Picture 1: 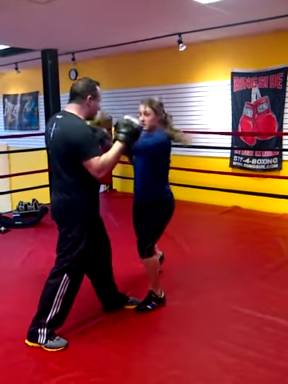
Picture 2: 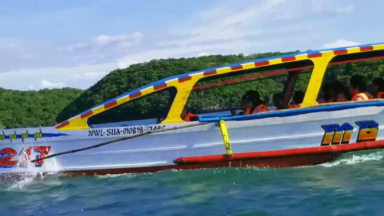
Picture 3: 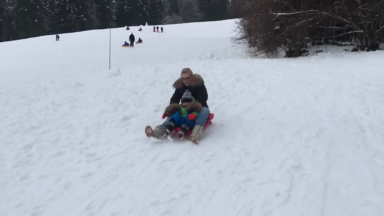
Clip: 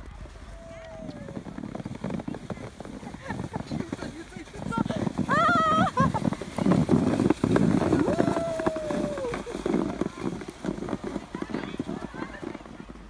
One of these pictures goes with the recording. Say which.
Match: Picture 3